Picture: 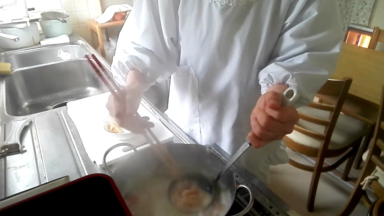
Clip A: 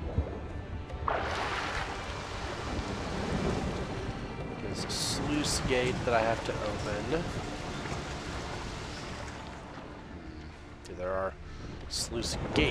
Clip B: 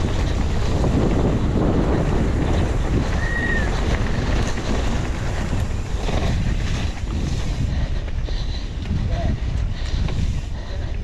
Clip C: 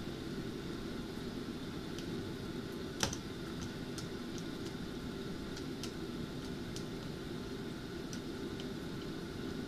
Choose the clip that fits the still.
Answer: C